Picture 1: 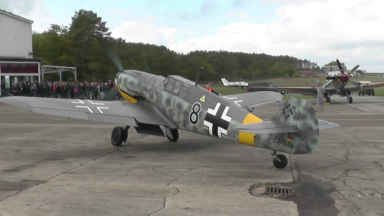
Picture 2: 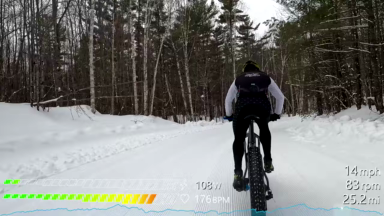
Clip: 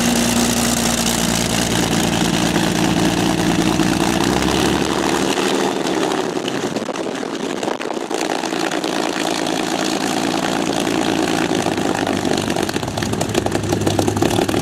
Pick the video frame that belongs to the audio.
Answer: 1